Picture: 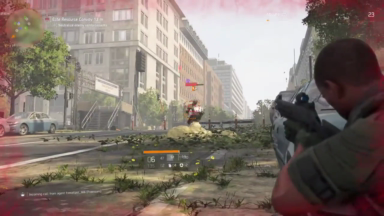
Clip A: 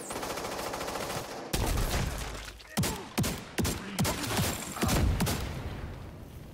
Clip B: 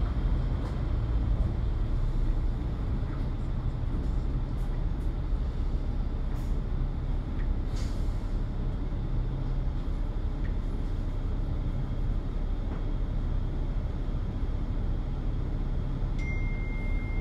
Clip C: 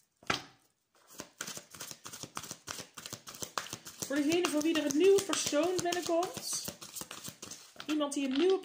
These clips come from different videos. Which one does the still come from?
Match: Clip A